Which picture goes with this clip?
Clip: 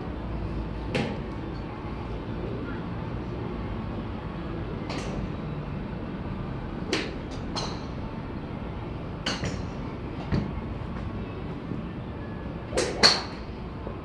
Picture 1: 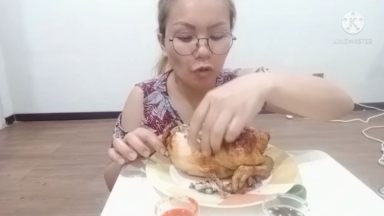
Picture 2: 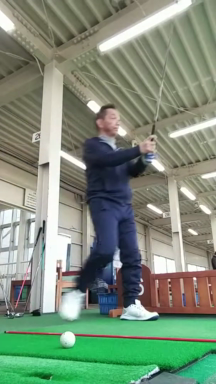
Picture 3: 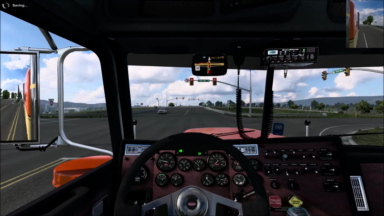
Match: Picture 2